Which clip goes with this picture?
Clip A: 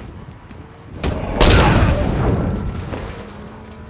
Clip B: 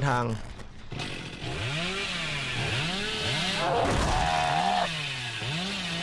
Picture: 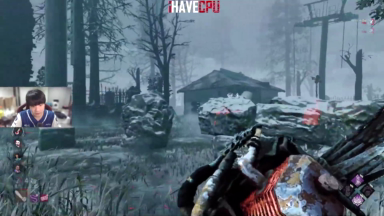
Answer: B